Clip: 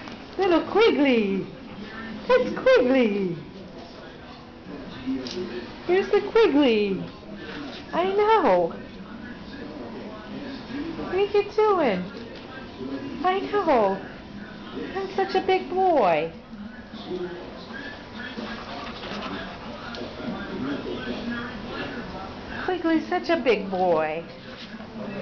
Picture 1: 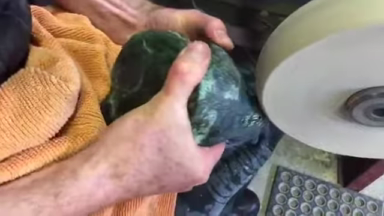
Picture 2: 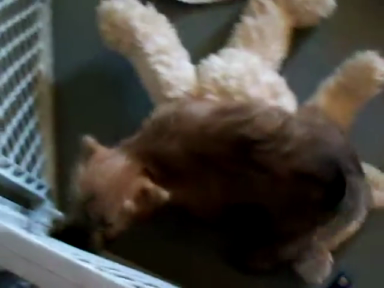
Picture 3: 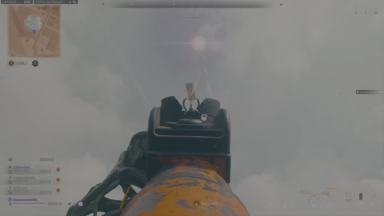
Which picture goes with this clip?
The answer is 2